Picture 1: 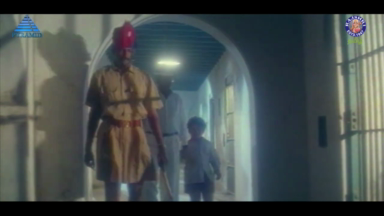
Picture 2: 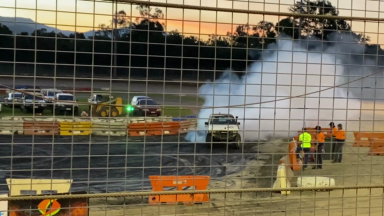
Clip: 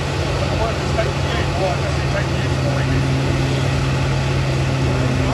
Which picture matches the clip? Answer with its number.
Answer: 2